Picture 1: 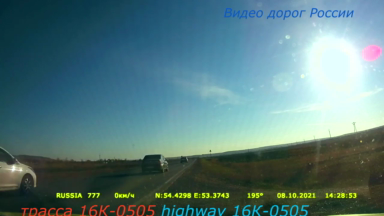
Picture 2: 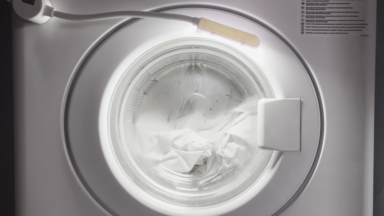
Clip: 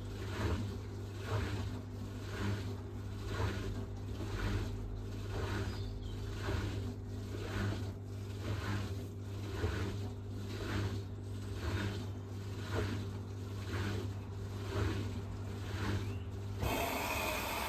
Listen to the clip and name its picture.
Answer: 2